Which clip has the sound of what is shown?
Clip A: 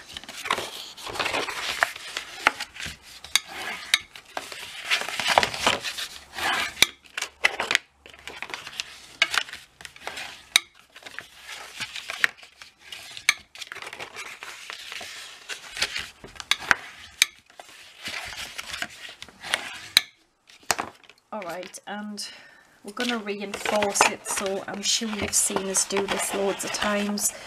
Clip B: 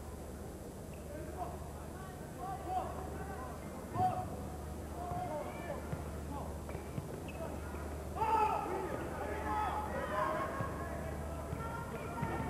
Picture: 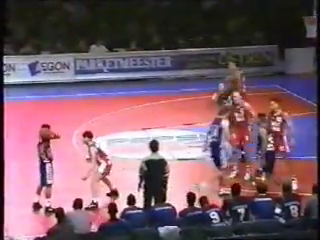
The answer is B